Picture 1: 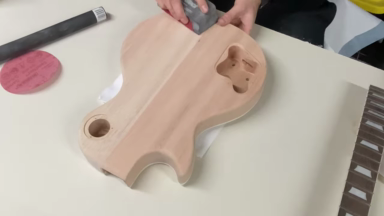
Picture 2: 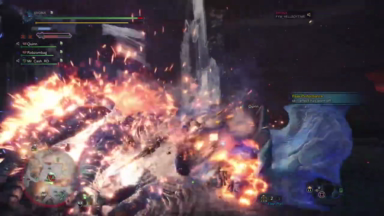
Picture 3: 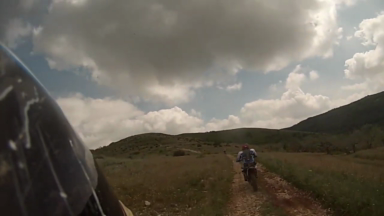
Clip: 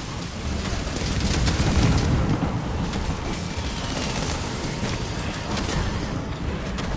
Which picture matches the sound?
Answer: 2